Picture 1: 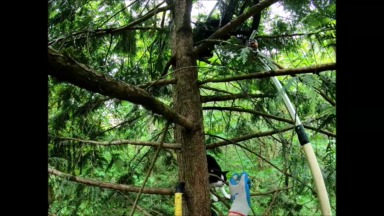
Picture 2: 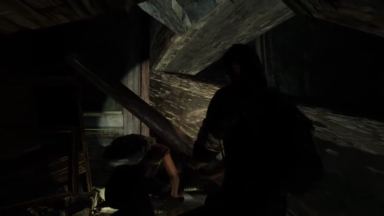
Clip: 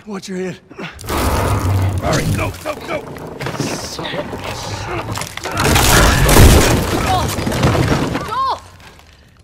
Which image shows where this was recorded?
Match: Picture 2